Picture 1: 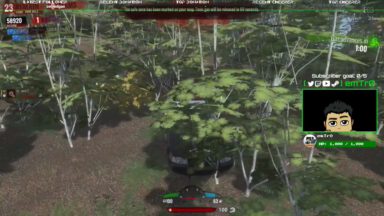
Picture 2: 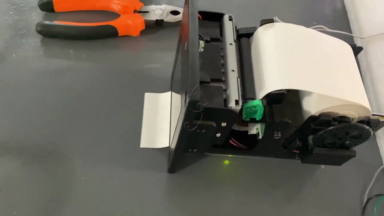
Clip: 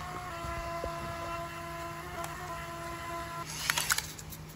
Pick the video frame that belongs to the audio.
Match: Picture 2